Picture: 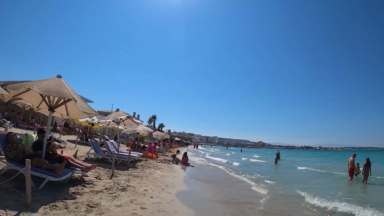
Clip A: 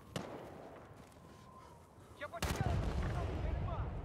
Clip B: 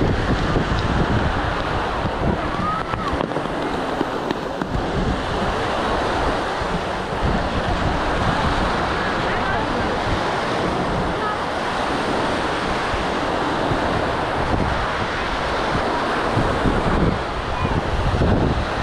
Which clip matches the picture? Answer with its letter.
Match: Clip B